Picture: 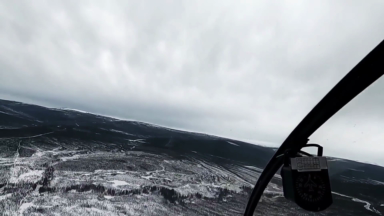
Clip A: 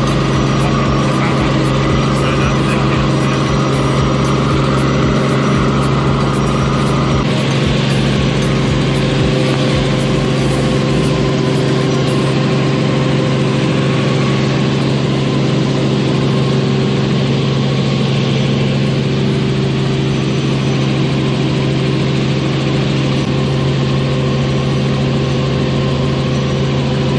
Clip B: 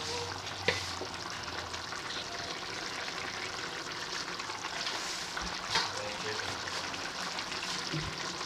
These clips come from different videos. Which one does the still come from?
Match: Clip A